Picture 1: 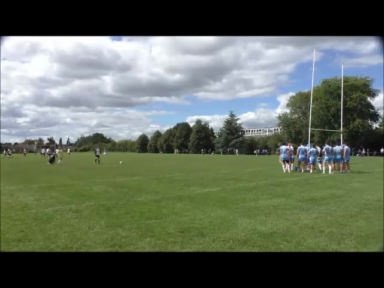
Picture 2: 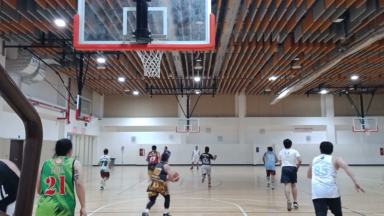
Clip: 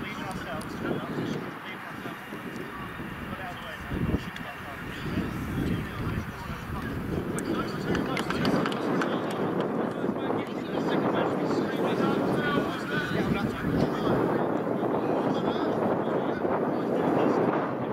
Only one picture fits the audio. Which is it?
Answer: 1